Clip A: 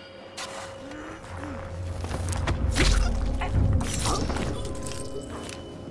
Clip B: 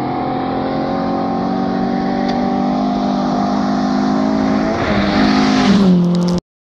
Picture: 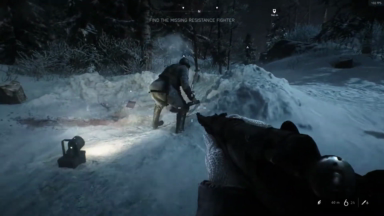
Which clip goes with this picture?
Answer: A